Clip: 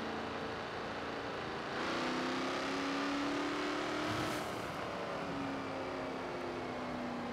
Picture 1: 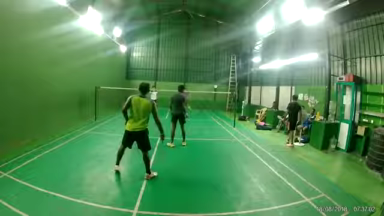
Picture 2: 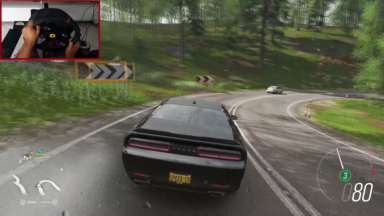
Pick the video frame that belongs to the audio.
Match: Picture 2